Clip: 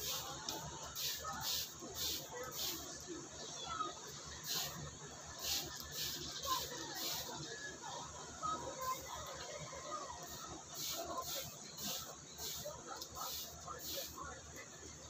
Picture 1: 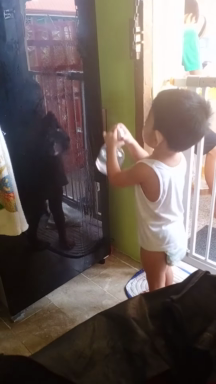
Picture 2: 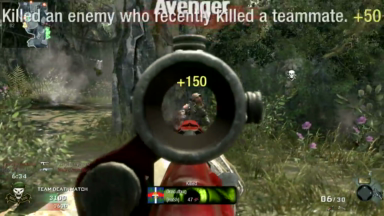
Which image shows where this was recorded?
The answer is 1